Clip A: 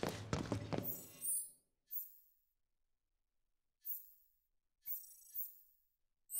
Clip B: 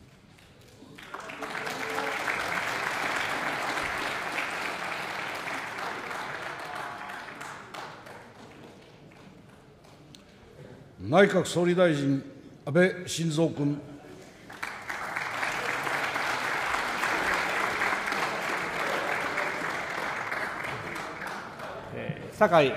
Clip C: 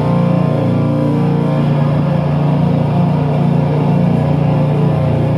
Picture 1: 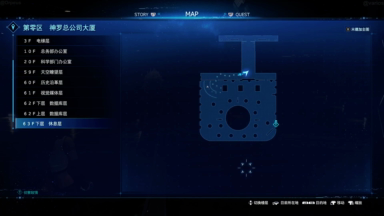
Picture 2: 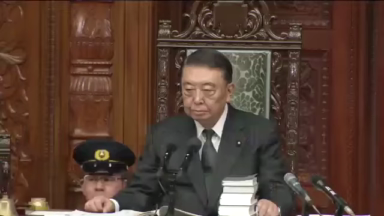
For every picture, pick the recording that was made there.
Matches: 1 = A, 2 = B